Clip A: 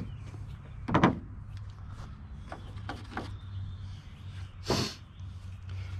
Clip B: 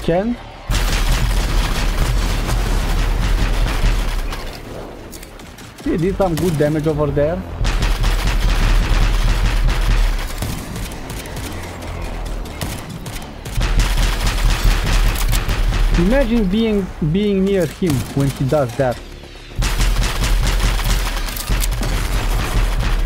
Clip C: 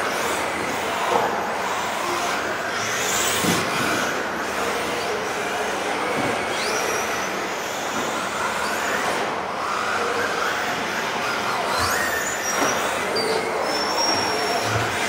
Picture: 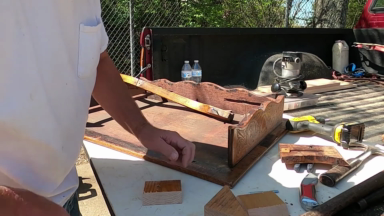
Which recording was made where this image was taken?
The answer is A